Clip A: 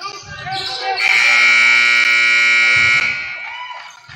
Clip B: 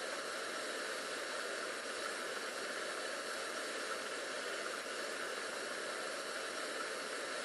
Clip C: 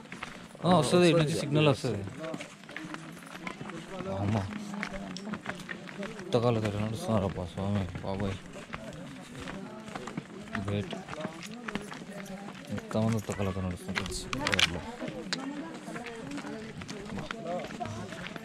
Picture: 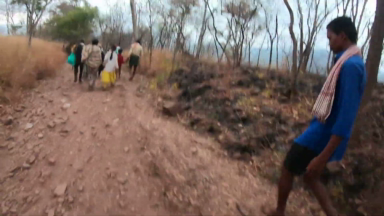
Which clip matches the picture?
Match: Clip C